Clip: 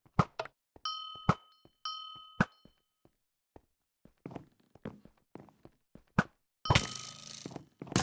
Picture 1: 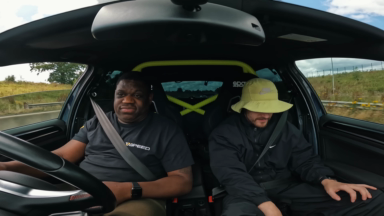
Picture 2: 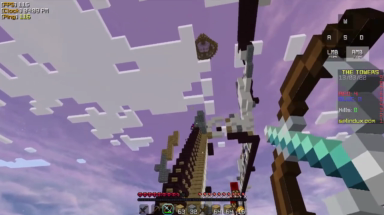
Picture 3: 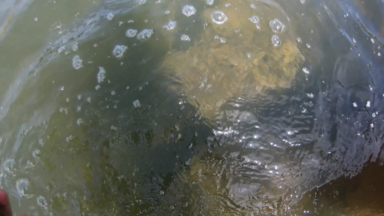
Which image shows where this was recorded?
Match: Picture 2